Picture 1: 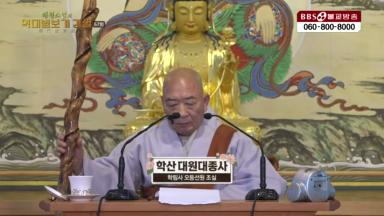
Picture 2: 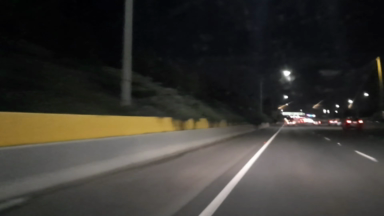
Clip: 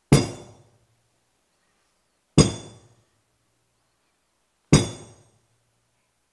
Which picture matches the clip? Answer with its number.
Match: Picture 1